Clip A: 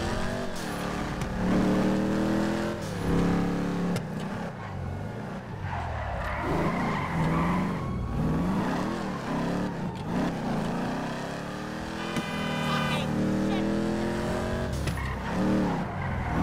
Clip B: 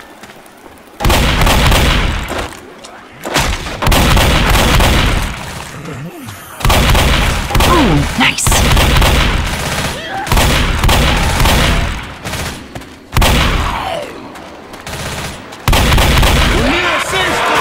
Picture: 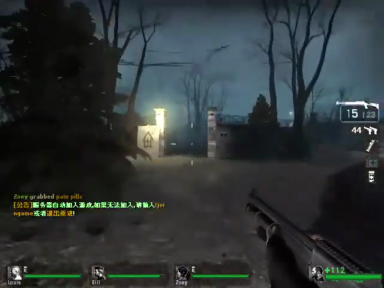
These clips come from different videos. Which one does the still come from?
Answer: B